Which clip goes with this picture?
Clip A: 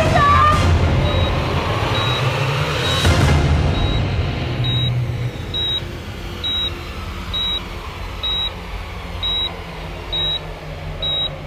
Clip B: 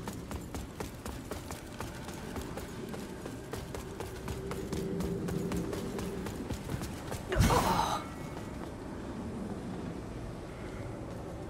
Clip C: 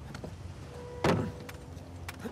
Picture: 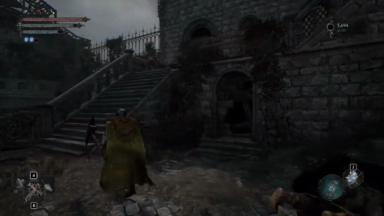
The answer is B